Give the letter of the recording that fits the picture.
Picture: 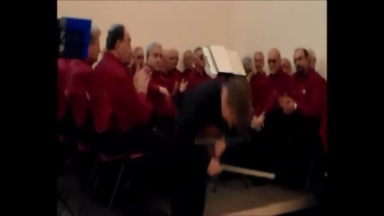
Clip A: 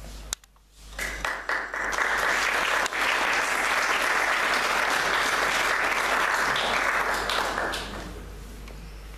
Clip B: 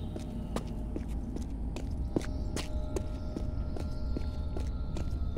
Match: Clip A